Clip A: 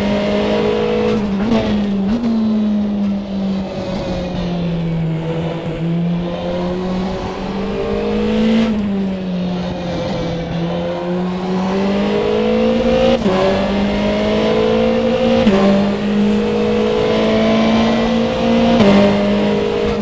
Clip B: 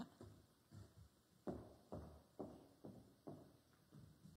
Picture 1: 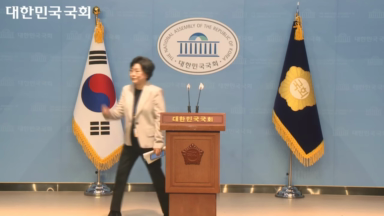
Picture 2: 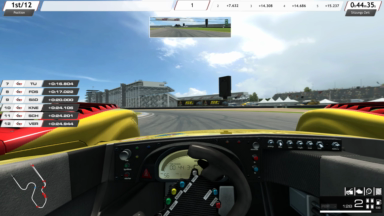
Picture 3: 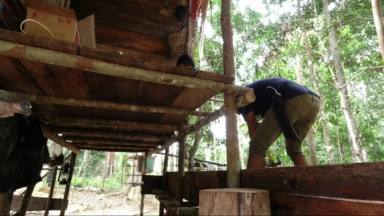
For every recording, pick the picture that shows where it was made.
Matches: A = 2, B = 1